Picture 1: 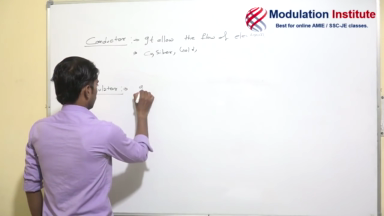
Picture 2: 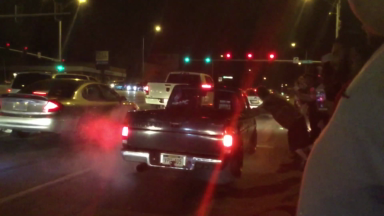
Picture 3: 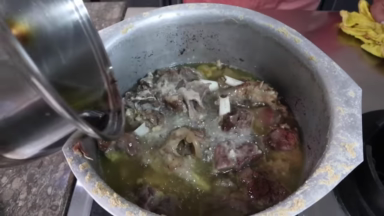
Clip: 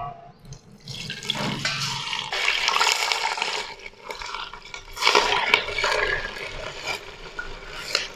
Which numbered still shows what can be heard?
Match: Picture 3